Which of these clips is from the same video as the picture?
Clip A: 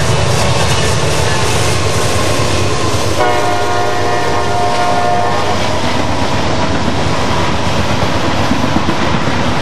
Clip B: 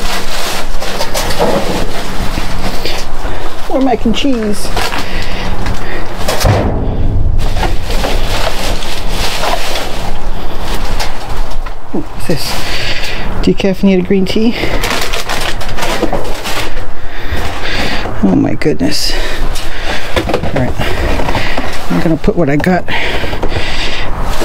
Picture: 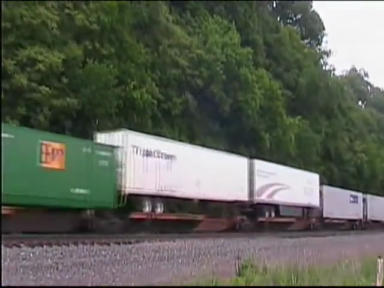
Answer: A